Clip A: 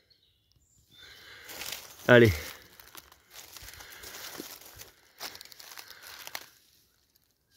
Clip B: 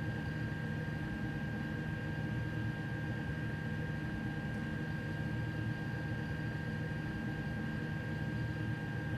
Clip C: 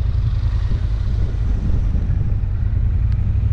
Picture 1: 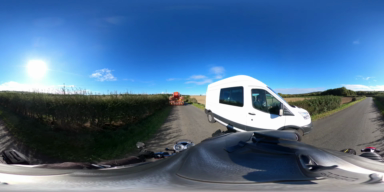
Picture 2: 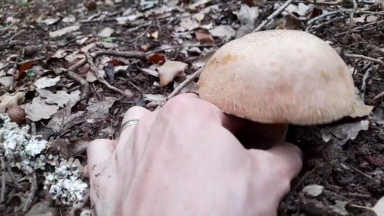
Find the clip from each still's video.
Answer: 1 C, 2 A